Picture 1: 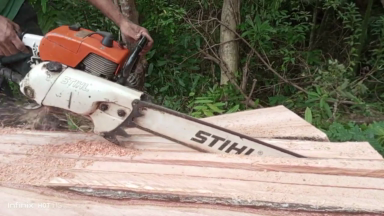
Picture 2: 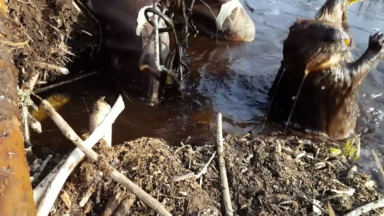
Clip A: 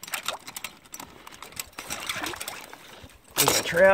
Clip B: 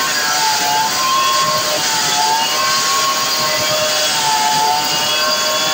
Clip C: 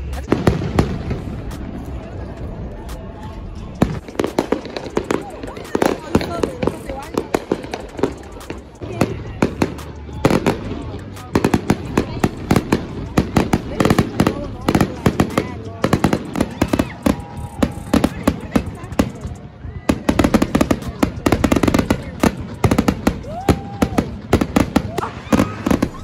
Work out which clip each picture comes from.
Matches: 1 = B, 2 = A